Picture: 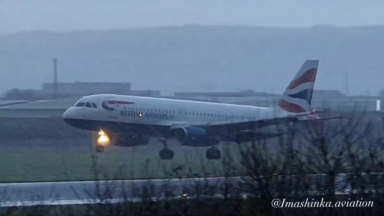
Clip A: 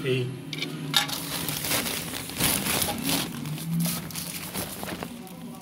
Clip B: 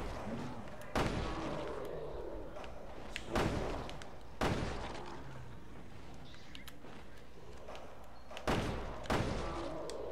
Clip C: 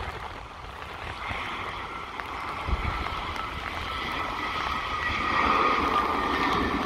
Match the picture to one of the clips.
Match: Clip C